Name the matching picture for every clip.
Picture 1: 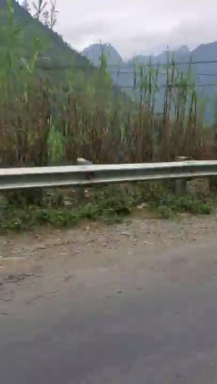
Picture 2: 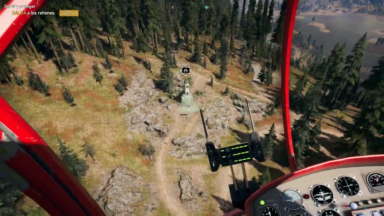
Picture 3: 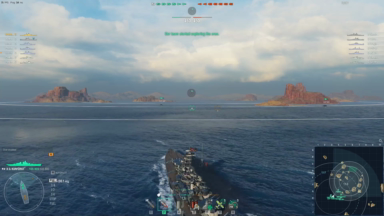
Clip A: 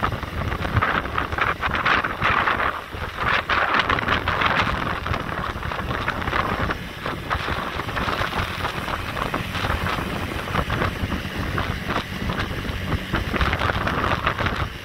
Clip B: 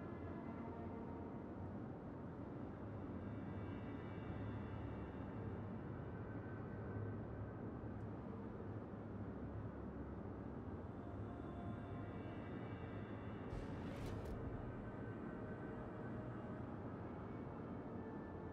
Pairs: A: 1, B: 3